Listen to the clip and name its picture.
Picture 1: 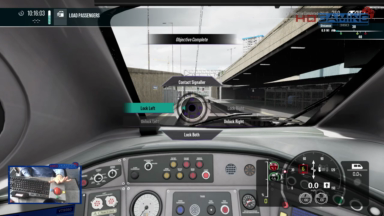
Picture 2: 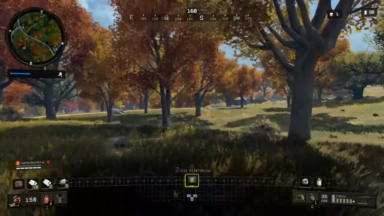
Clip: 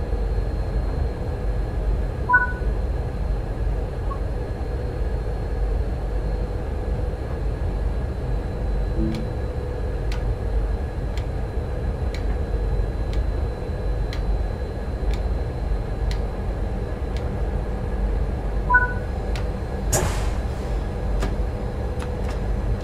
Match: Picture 1